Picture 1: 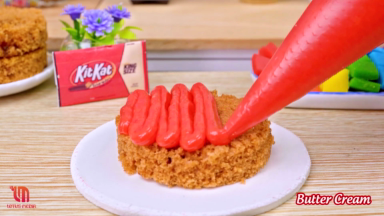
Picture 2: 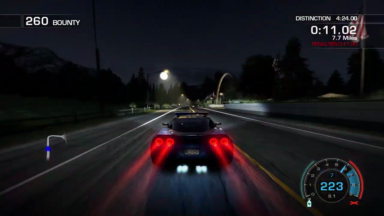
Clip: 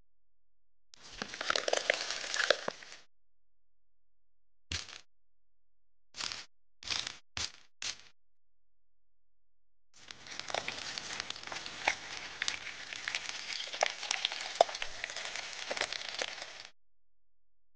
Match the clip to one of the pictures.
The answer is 1